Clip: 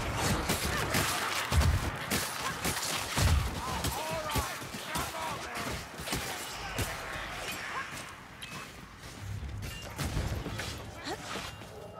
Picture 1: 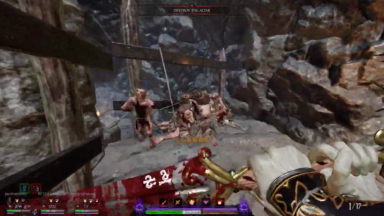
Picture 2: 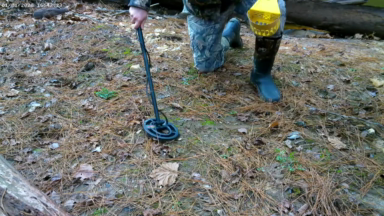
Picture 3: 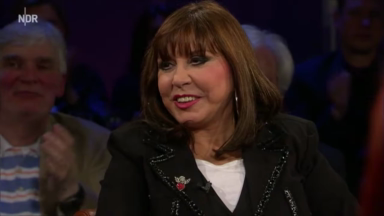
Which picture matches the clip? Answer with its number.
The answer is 1